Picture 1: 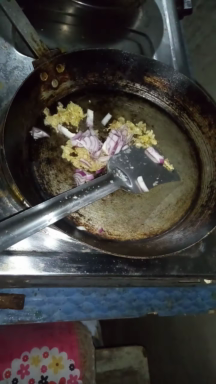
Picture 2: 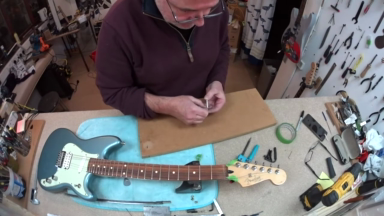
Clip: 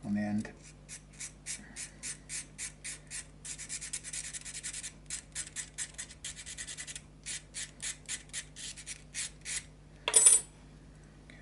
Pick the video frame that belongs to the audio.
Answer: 2